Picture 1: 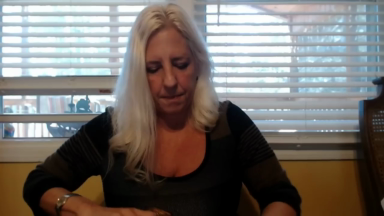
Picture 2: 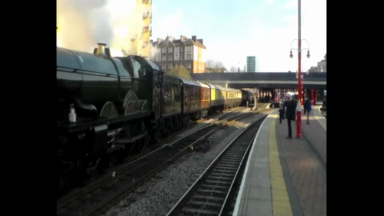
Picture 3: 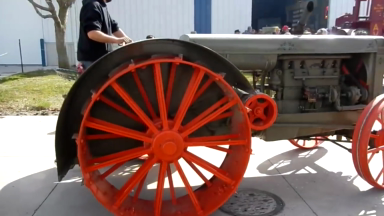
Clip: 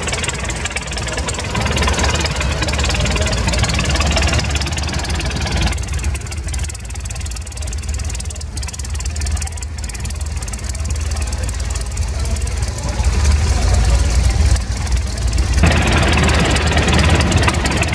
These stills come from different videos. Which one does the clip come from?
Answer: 3